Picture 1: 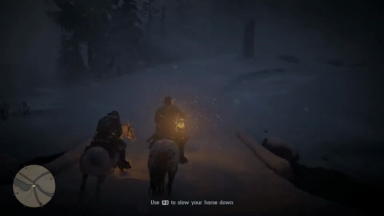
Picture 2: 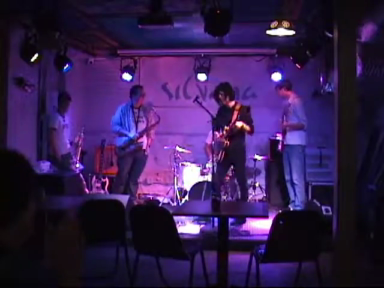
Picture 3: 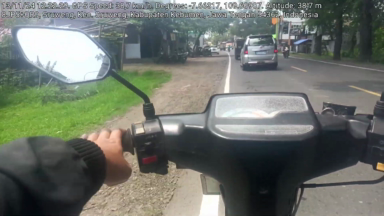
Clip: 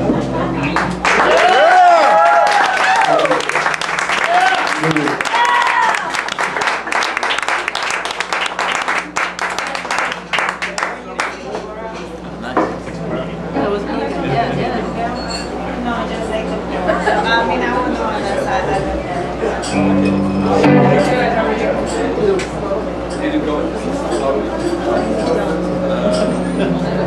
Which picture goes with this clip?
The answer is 2